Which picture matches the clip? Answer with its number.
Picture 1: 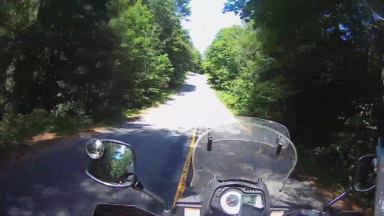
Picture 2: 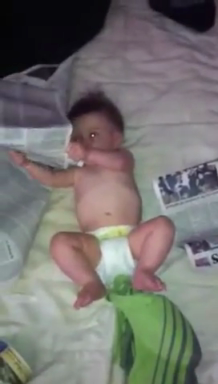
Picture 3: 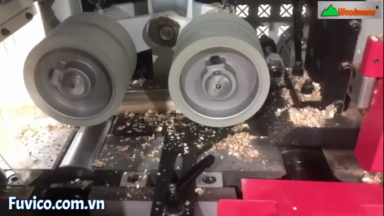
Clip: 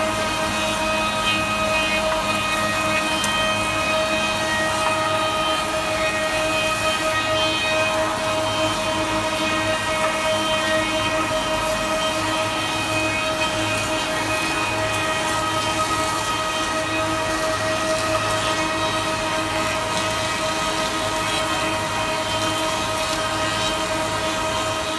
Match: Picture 3